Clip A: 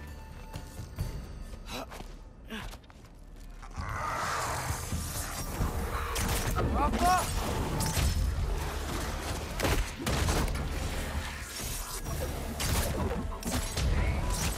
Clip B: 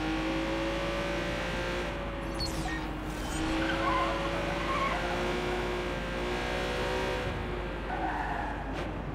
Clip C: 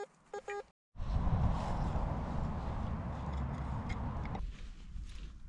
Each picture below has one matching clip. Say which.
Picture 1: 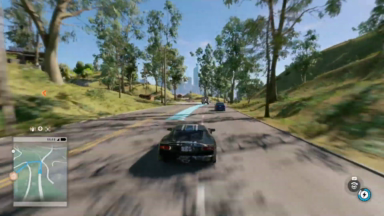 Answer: B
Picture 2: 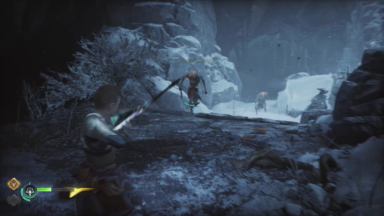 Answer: A